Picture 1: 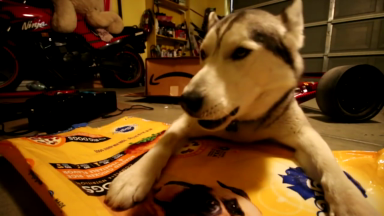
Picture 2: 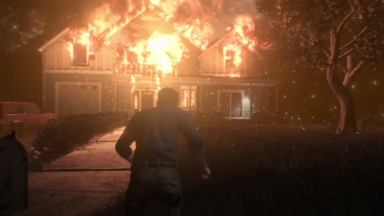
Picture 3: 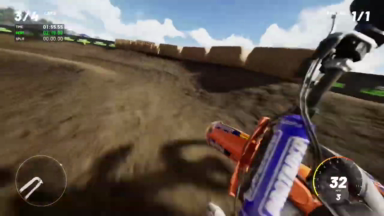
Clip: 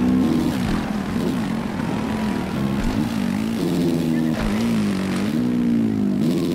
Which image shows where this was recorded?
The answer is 3